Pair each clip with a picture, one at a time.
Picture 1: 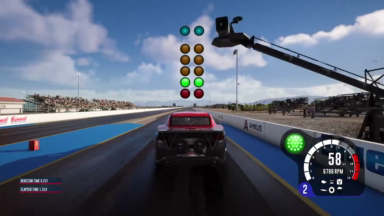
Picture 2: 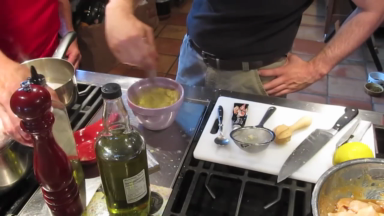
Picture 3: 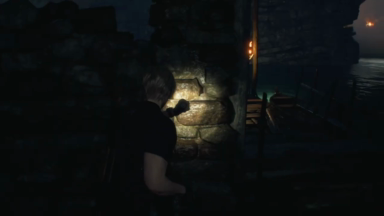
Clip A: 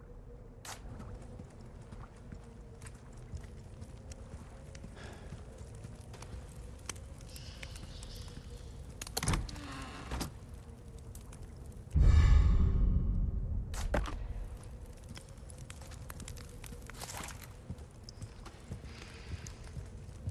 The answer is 3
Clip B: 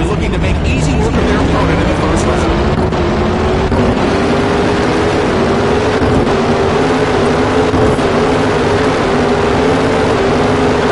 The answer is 1